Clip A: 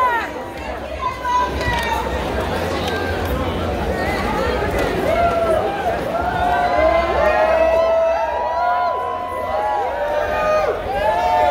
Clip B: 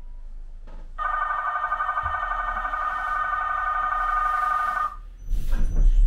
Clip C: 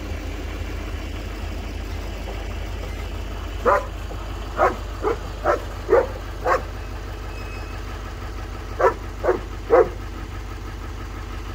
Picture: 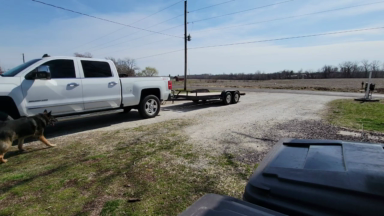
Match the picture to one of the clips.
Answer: C